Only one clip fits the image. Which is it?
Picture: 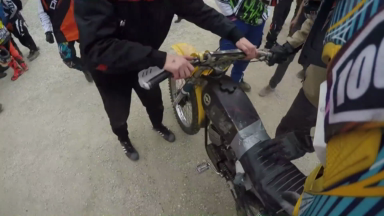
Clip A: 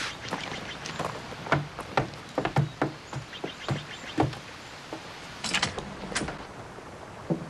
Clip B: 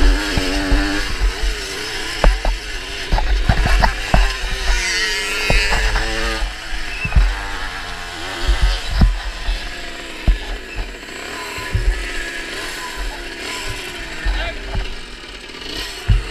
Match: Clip B